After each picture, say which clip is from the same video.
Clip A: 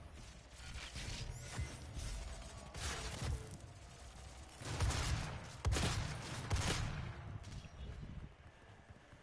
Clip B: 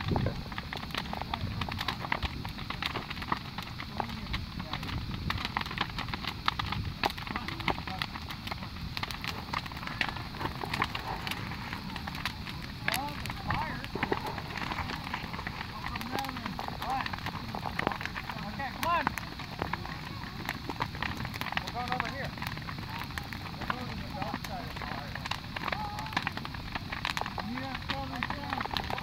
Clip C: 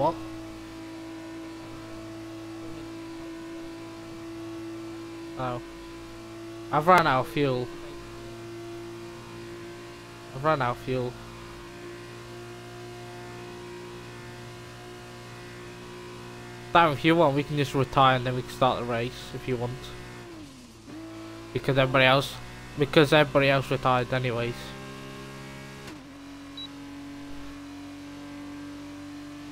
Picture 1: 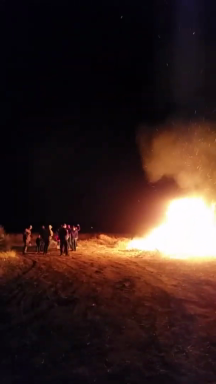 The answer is B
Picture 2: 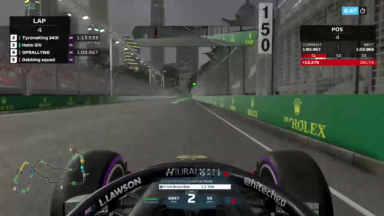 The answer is C